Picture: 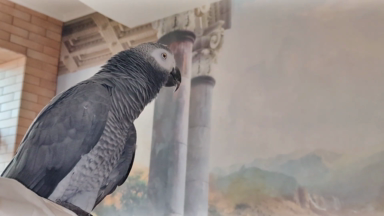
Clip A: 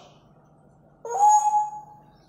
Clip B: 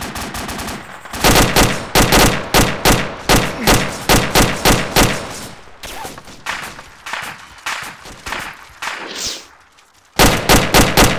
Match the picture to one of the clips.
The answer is A